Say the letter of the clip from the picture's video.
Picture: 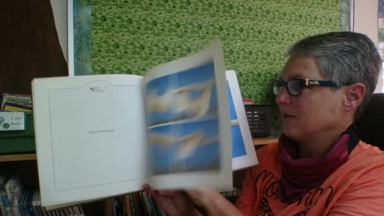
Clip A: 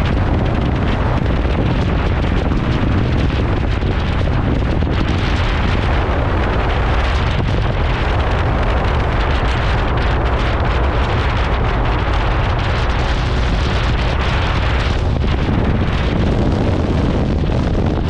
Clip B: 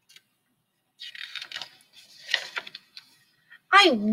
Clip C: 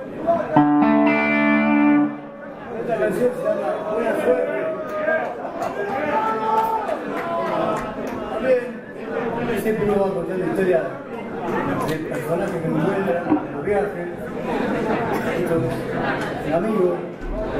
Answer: B